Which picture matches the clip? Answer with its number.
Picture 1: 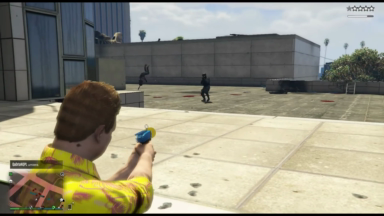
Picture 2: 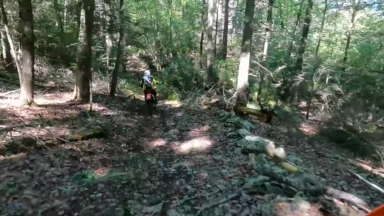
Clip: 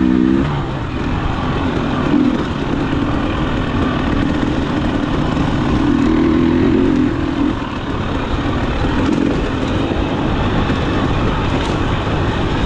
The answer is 2